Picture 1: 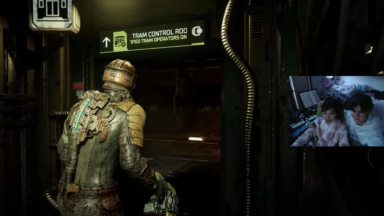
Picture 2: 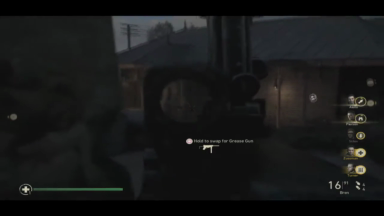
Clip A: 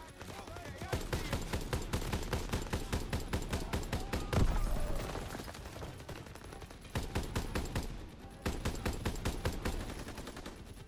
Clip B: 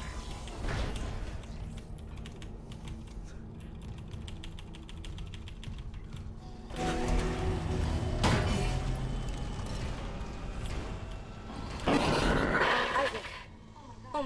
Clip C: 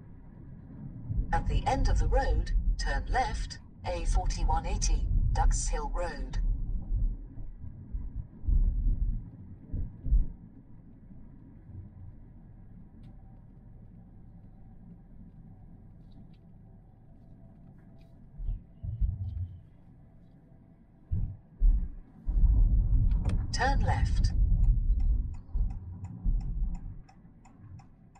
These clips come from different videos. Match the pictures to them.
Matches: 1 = B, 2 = A